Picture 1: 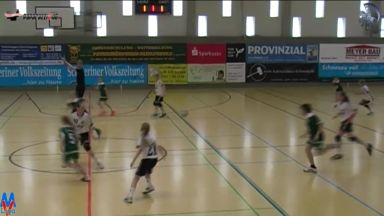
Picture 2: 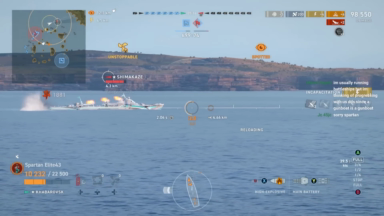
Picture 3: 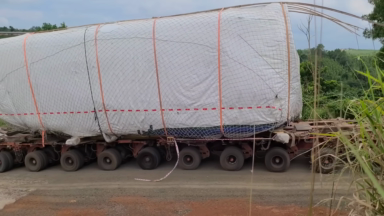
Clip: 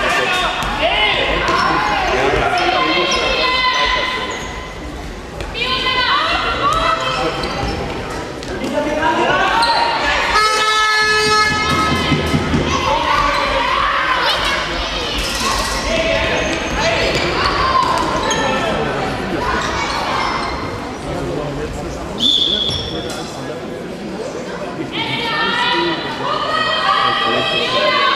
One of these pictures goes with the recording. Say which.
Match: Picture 1